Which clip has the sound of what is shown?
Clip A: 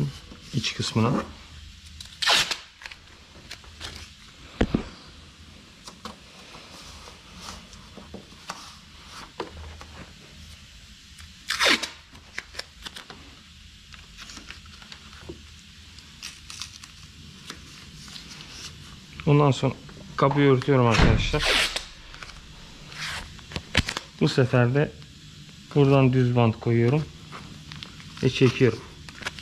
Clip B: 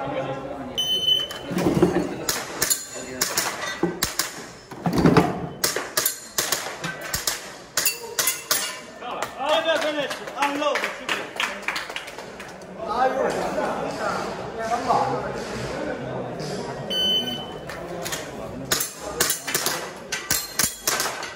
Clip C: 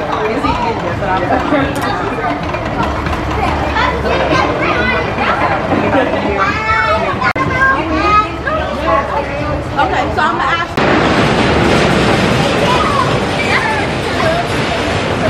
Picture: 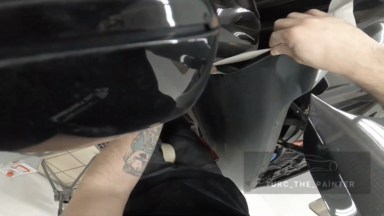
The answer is A